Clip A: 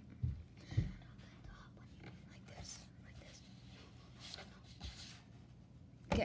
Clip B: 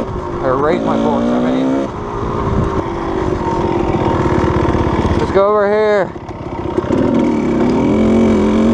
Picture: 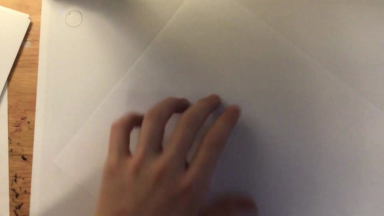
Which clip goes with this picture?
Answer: A